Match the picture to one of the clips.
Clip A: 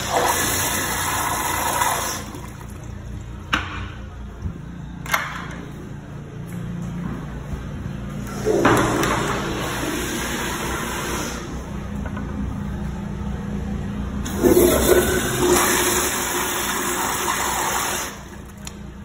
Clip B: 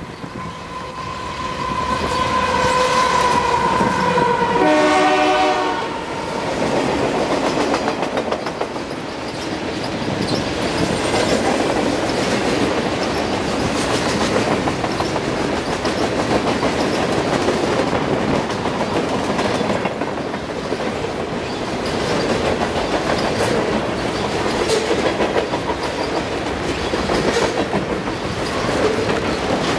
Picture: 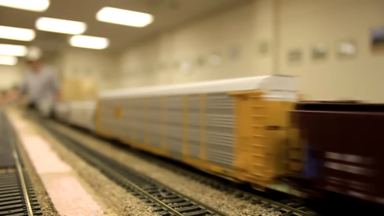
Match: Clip B